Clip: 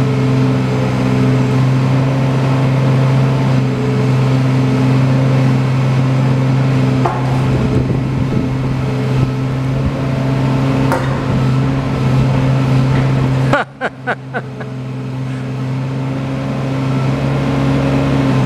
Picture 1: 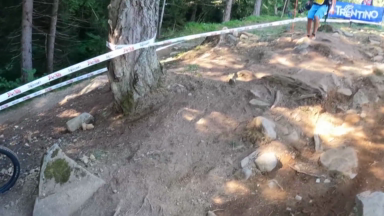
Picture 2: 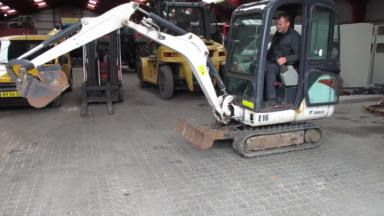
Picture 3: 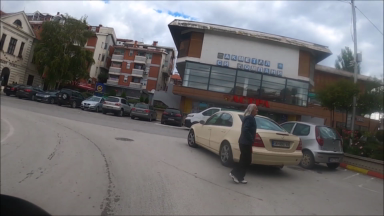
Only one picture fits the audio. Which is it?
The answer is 2